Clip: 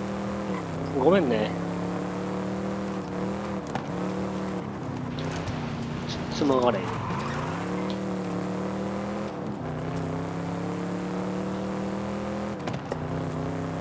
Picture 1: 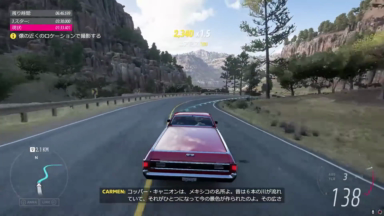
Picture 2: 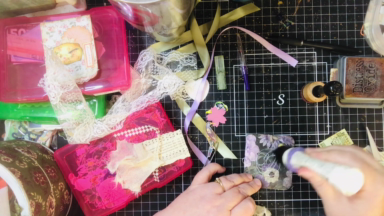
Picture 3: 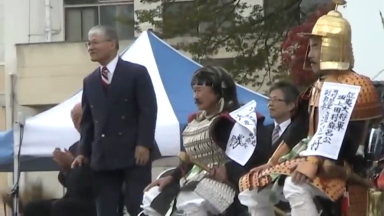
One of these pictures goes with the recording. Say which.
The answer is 1